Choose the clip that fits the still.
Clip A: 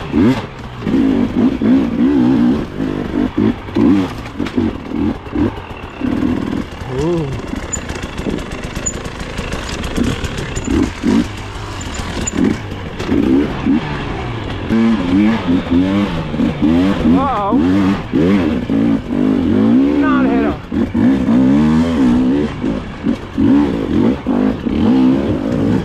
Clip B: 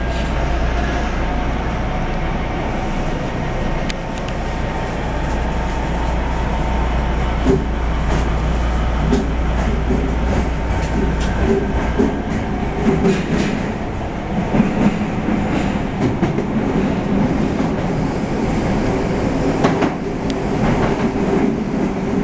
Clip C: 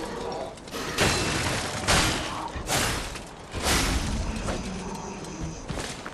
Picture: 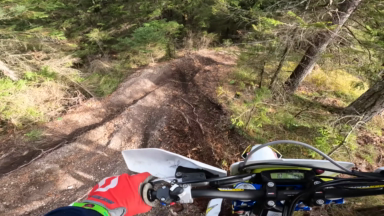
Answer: A